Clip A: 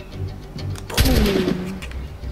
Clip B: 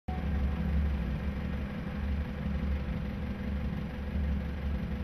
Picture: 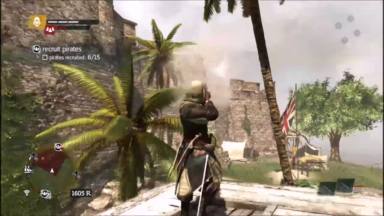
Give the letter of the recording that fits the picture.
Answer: A